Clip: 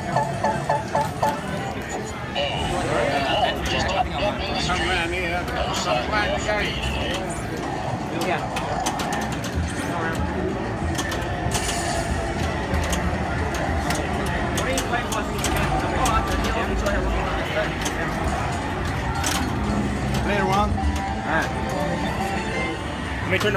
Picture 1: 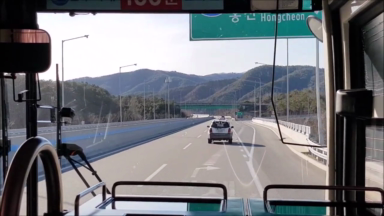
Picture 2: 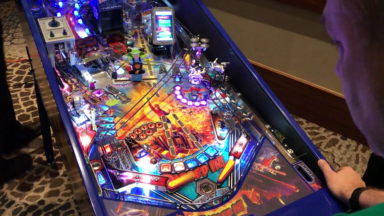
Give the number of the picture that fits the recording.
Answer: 2